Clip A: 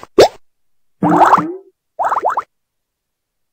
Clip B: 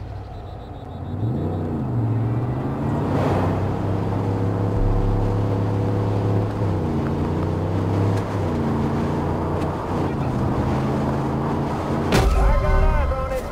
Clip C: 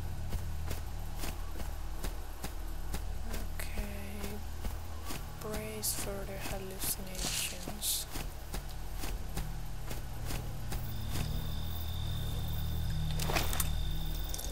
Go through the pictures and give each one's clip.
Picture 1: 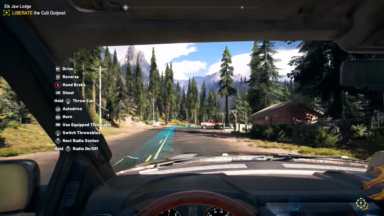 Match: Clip B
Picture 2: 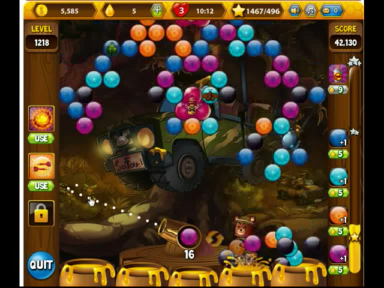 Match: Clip A